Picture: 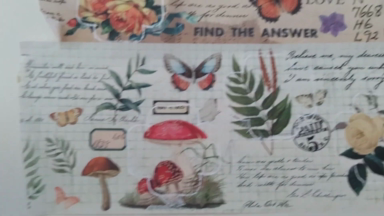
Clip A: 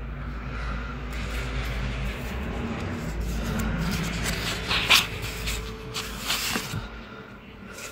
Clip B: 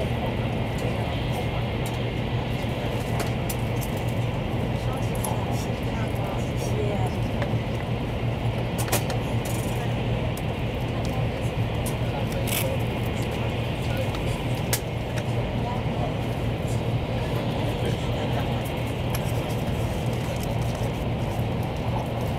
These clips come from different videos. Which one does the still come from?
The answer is A